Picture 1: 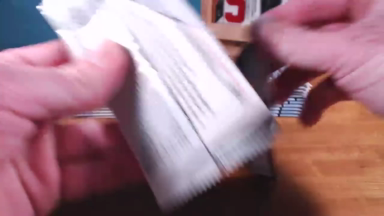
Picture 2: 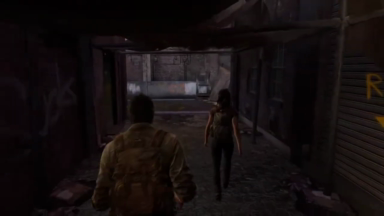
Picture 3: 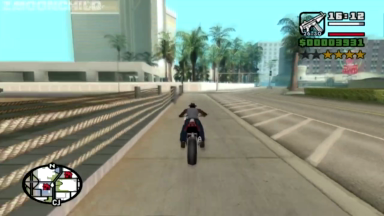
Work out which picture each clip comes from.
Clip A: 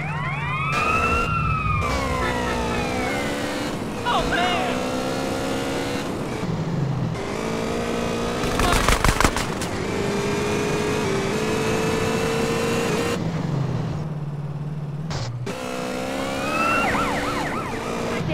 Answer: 3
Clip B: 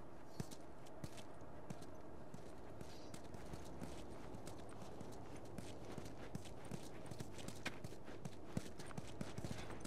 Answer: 2